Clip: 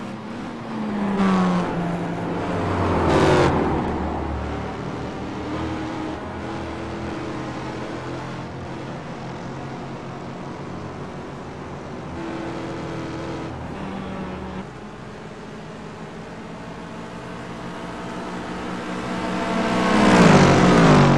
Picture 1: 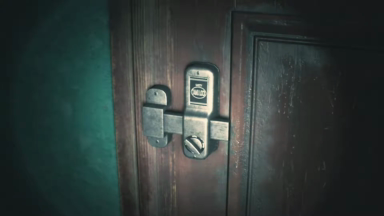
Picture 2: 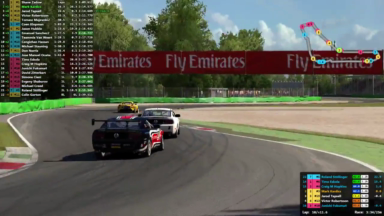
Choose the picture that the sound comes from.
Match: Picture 2